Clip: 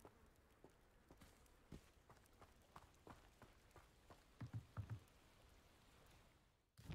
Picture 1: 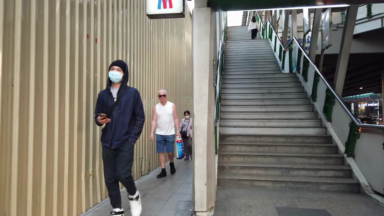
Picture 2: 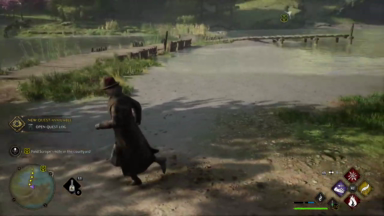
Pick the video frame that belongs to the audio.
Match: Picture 2